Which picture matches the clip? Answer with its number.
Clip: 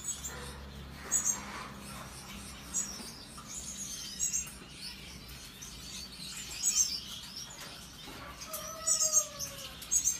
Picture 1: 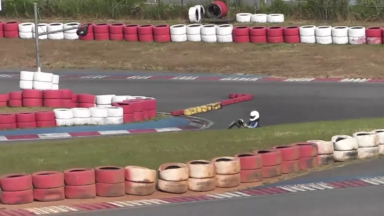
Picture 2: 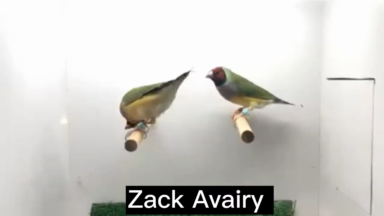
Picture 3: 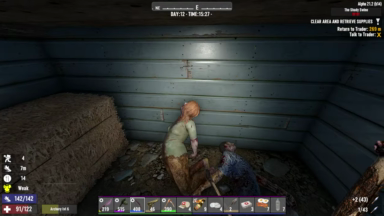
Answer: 2